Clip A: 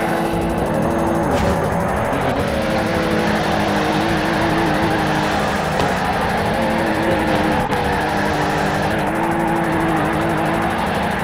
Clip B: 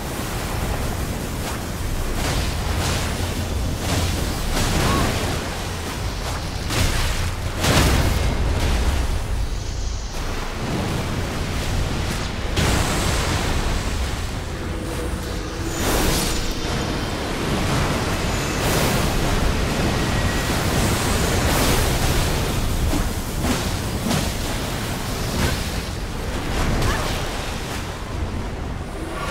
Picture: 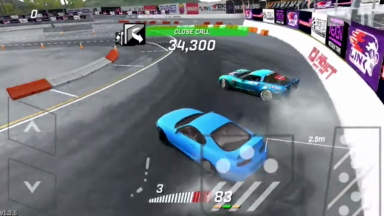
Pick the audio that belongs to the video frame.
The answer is A